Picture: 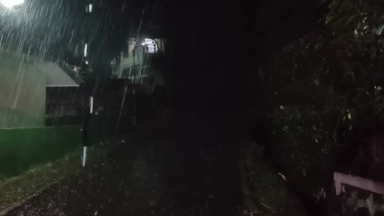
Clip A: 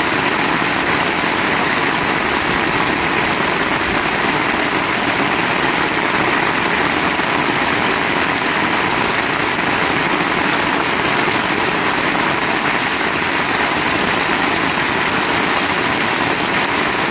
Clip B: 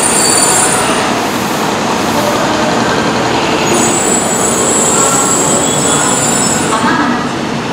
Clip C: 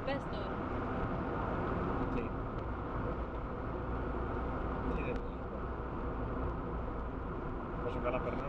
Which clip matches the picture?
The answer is A